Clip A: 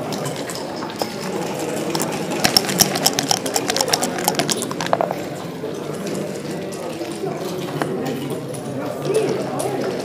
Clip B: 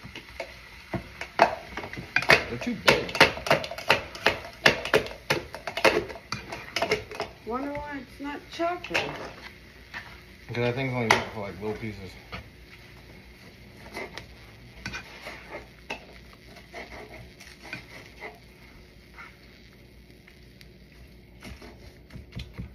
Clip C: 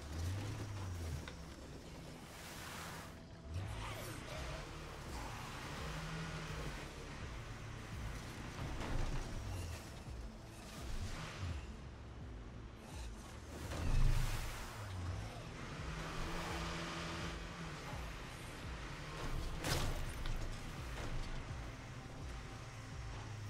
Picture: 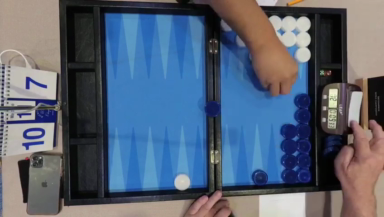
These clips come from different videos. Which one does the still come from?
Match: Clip A